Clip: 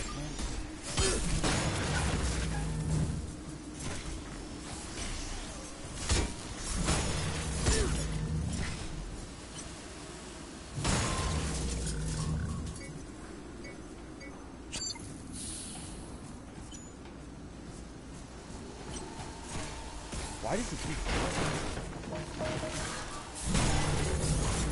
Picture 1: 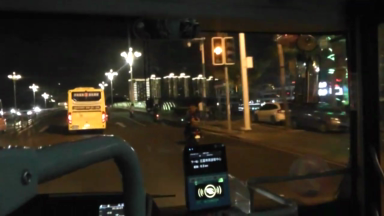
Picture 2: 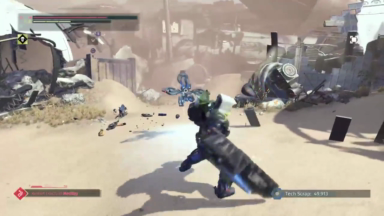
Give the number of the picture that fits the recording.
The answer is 2